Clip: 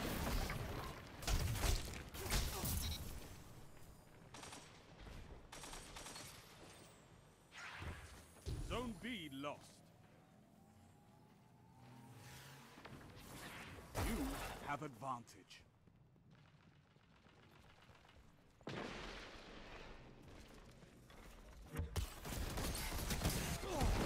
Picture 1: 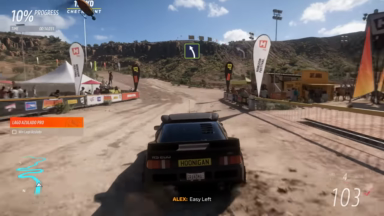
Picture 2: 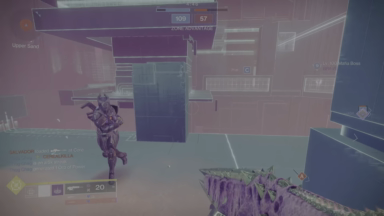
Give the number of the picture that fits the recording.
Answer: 2